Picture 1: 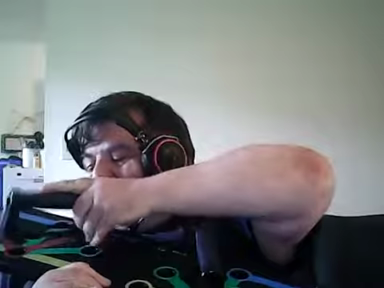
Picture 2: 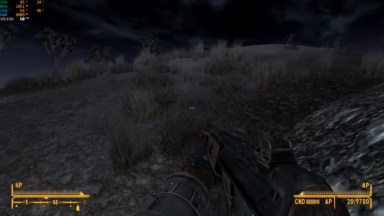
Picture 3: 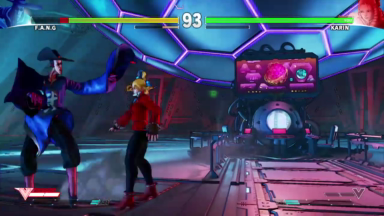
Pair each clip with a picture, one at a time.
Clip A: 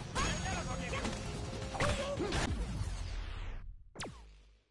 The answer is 3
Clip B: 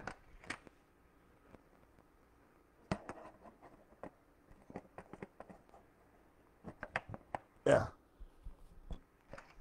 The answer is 1